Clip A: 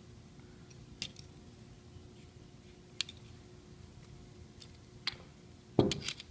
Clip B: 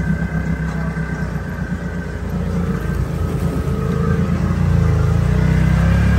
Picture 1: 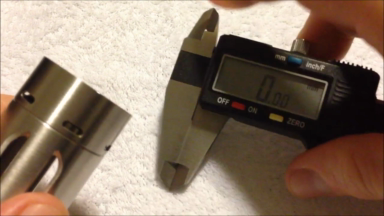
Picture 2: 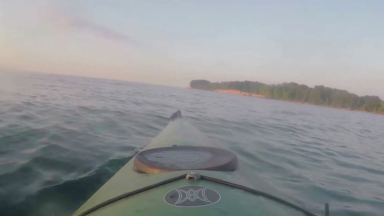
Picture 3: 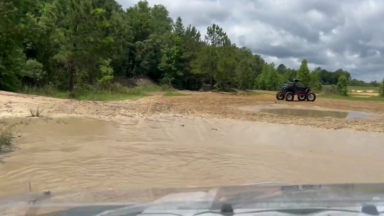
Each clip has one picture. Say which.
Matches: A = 1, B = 3